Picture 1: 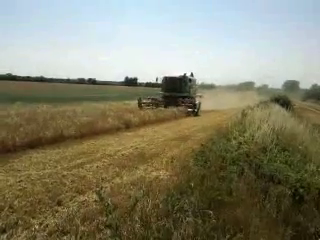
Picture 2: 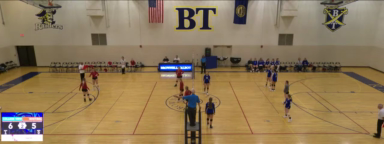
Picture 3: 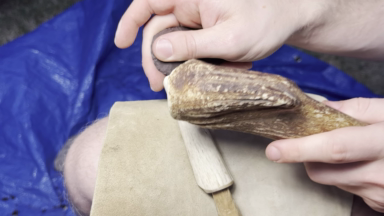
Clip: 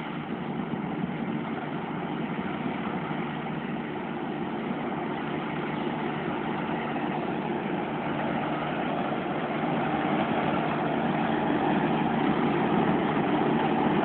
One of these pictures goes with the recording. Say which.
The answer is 1